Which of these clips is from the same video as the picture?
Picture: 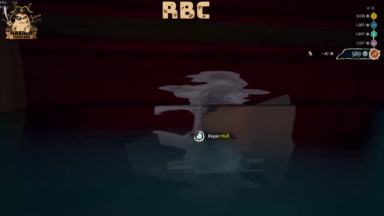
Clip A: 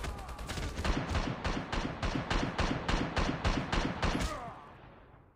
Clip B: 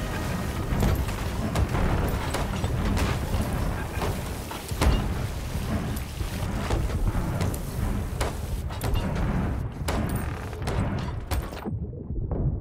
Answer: B